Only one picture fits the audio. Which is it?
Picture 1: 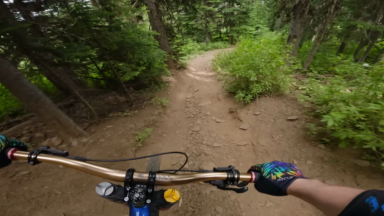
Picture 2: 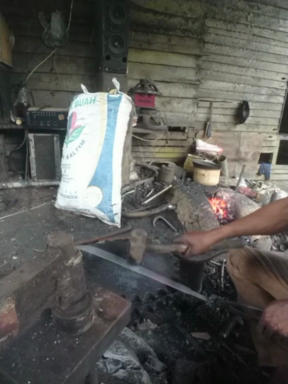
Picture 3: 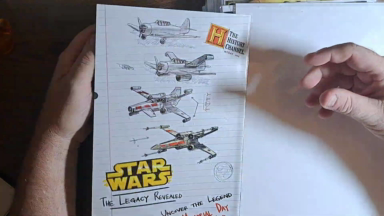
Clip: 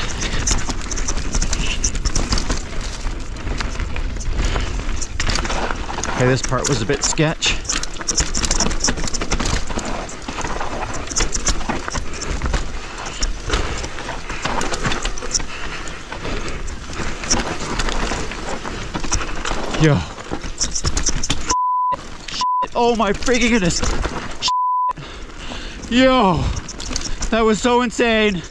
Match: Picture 1